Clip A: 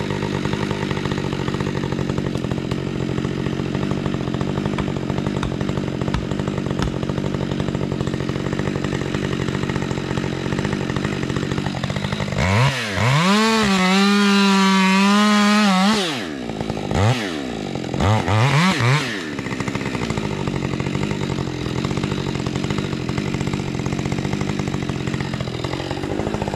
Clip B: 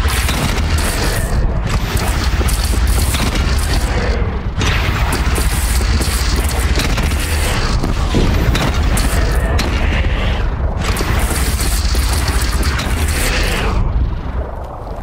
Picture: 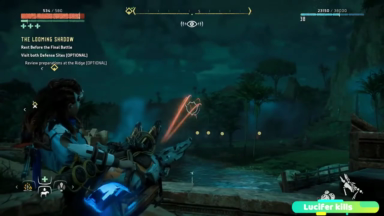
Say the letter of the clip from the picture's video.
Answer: B